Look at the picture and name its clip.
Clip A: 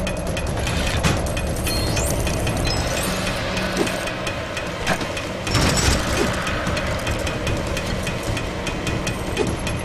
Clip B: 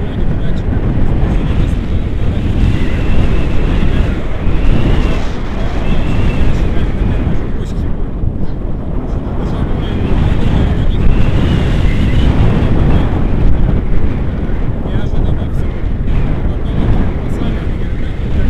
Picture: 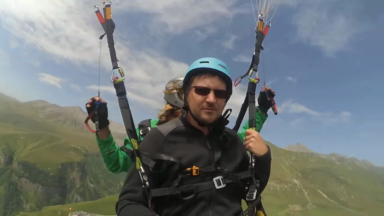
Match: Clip B